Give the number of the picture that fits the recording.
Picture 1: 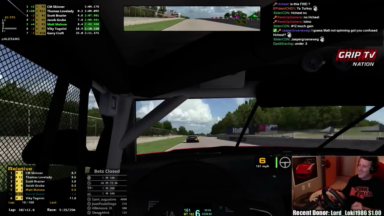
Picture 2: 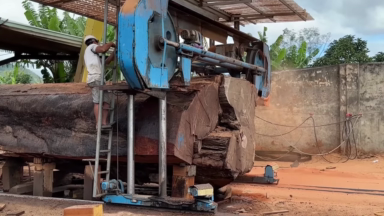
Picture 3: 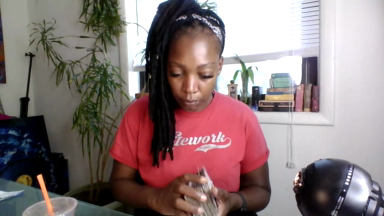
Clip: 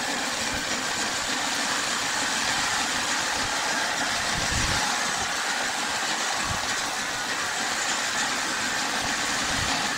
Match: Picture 2